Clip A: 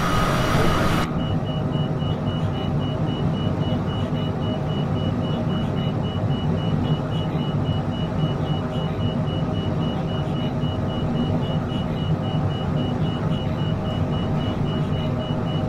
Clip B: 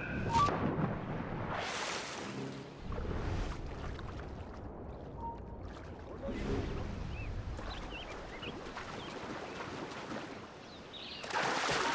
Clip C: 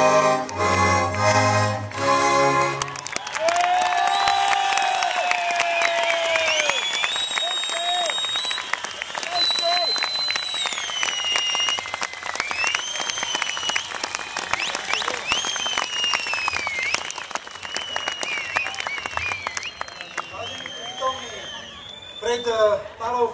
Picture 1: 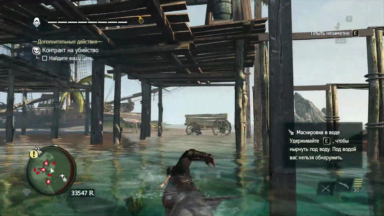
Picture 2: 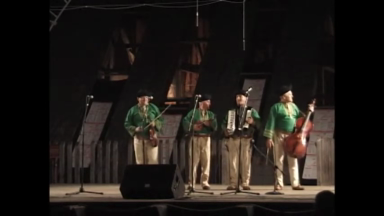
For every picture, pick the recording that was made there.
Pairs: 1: B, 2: C